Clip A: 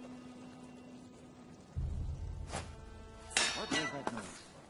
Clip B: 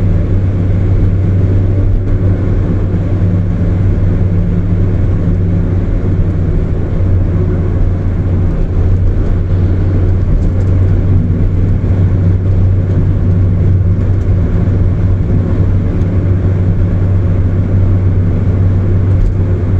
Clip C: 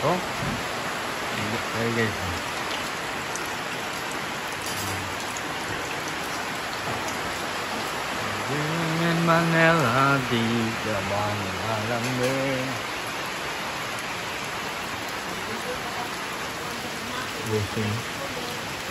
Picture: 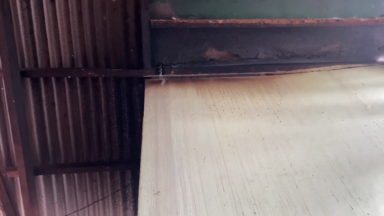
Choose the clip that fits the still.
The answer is C